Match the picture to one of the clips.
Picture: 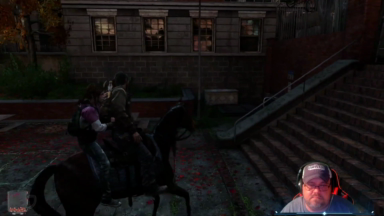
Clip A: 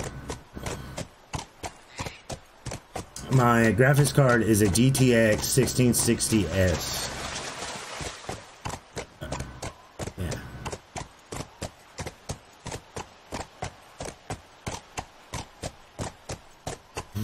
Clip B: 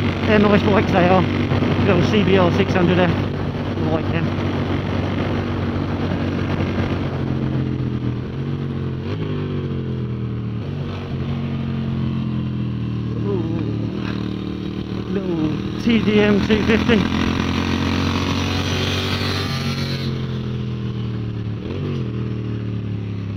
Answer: A